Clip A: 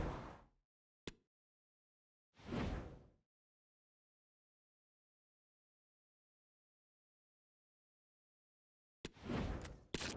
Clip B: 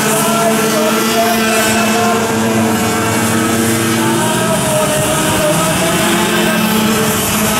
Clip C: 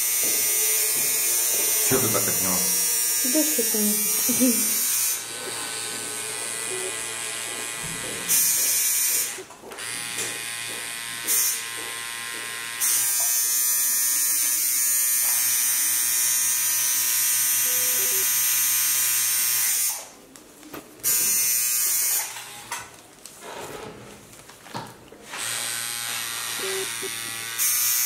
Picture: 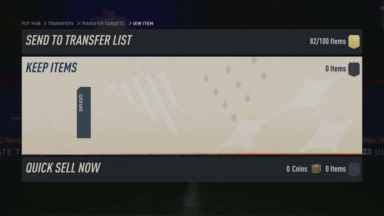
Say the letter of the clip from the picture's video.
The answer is A